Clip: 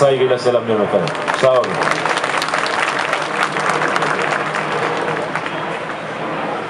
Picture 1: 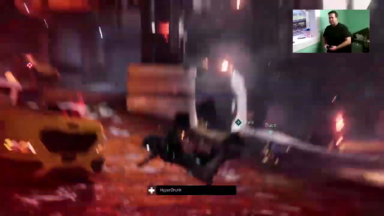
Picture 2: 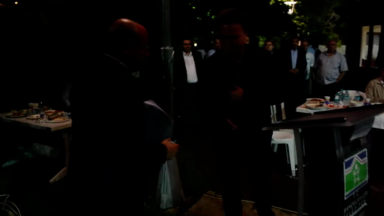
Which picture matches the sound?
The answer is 2